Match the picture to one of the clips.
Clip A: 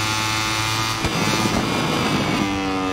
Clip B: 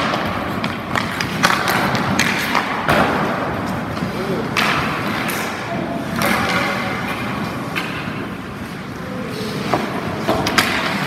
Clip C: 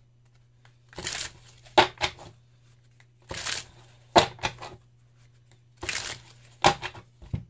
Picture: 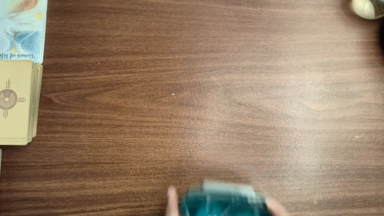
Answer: C